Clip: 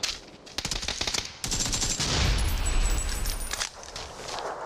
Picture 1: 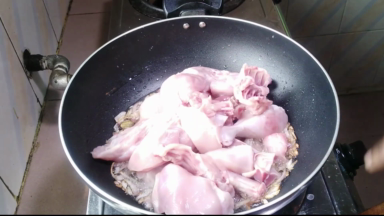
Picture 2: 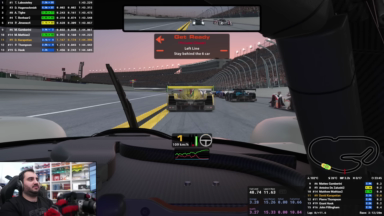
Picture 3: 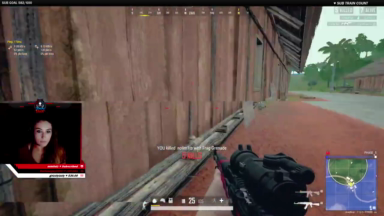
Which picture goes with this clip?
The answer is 3